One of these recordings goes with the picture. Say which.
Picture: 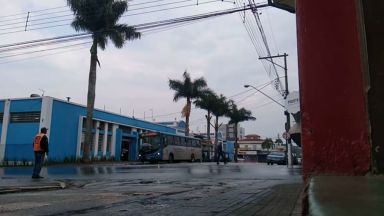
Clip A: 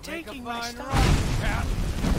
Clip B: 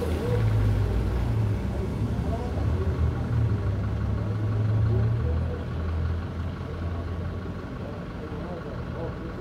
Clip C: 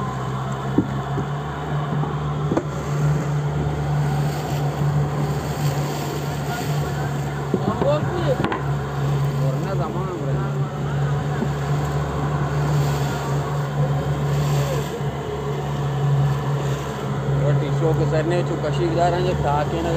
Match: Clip B